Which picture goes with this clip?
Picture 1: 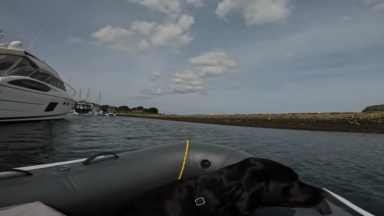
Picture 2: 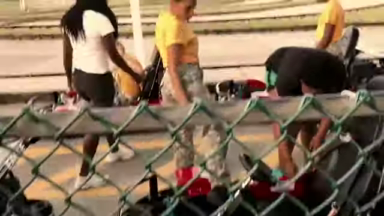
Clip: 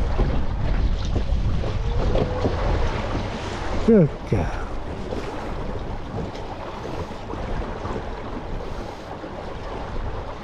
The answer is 1